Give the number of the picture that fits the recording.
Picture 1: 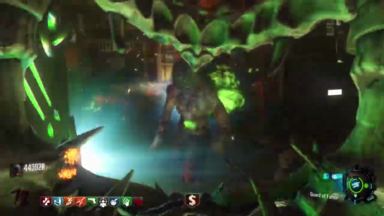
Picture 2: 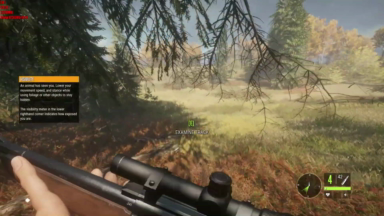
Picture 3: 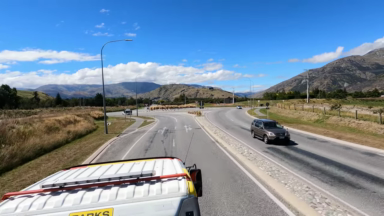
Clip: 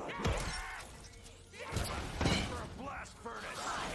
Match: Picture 1